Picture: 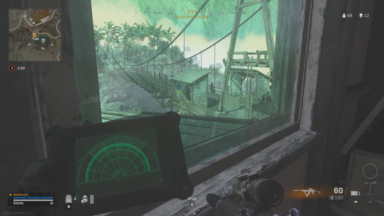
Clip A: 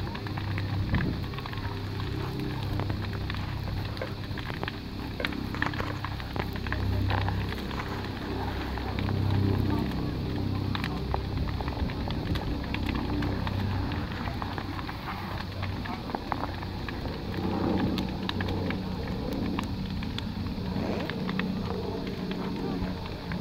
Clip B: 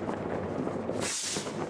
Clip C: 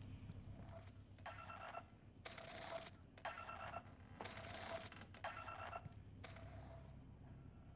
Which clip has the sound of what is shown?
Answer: C